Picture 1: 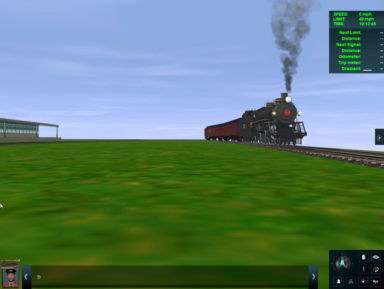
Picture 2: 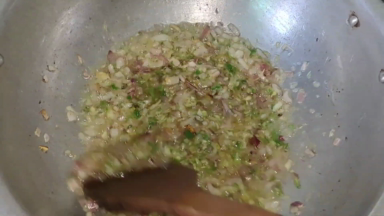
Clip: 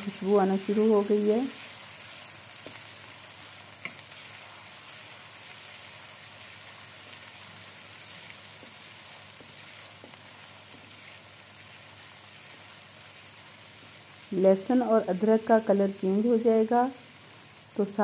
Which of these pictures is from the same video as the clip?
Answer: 2